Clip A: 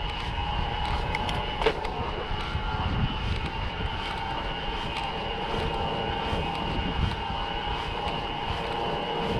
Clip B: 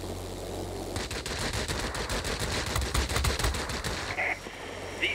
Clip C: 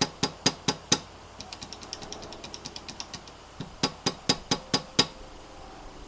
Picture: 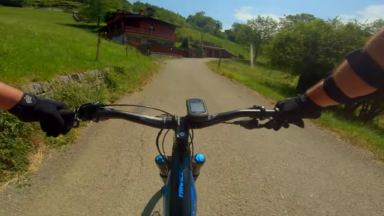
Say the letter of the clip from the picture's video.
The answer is A